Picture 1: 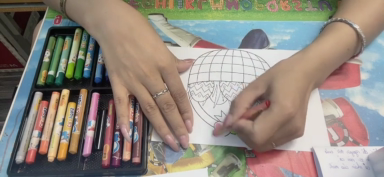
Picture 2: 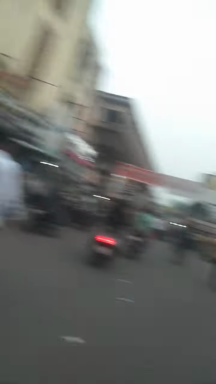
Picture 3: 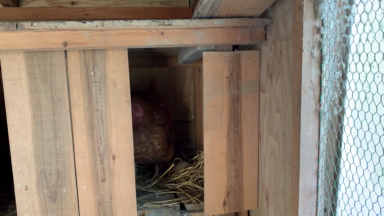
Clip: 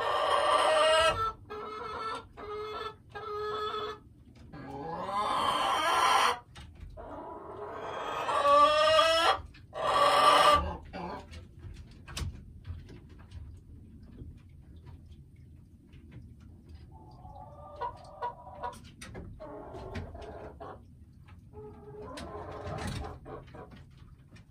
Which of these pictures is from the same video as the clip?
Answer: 3